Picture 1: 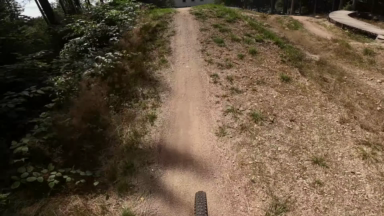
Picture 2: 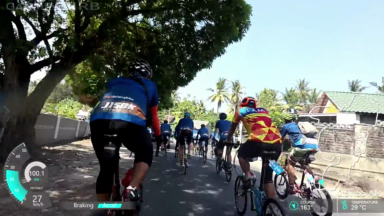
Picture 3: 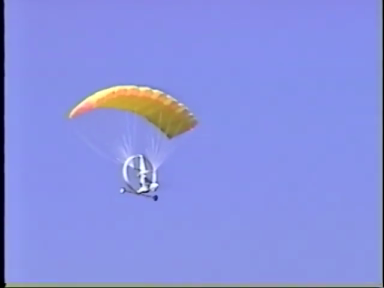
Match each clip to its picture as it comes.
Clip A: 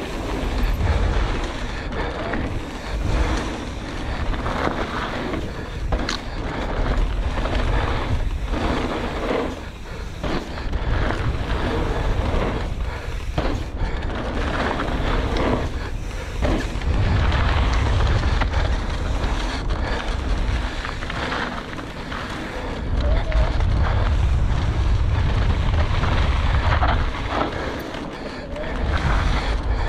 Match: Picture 1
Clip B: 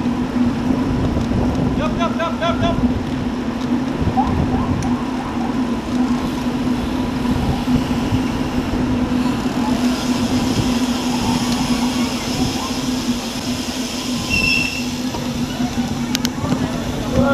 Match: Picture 2